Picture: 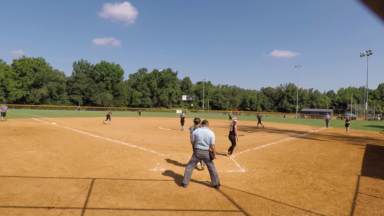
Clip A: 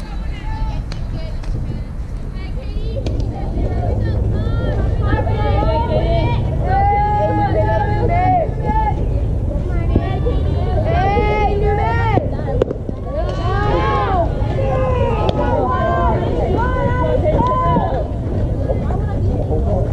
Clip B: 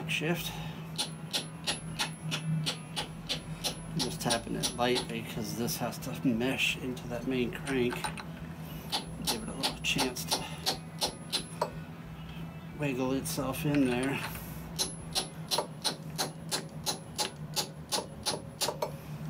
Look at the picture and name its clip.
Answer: A